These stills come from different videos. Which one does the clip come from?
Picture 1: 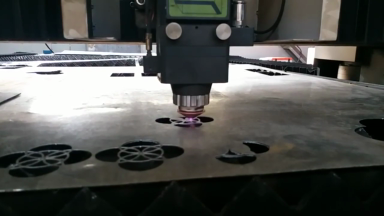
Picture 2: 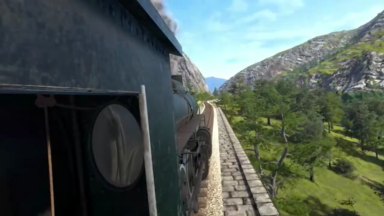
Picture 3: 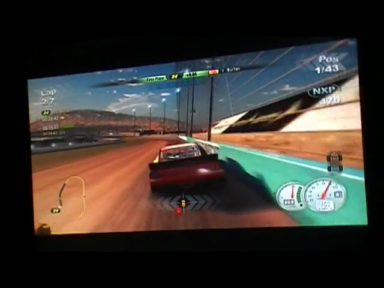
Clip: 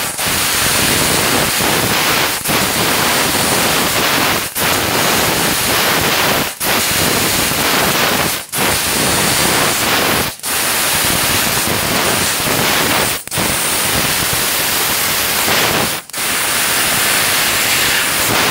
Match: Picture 1